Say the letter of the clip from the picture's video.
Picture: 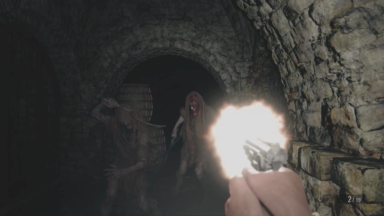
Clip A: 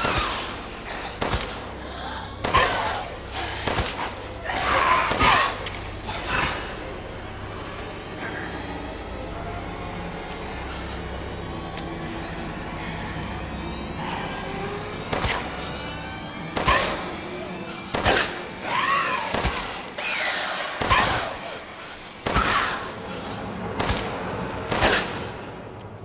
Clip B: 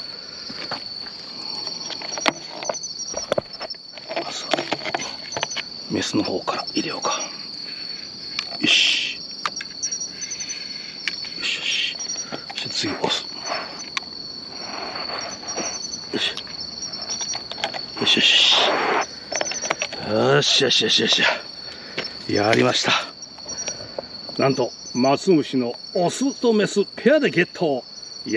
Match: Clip A